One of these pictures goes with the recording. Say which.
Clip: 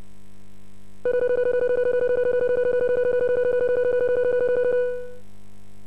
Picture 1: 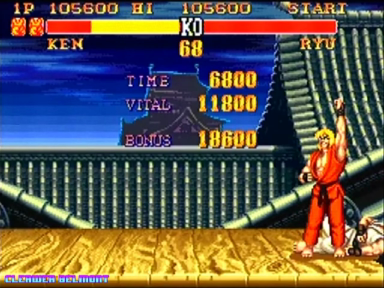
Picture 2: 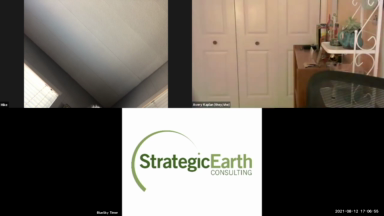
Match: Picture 1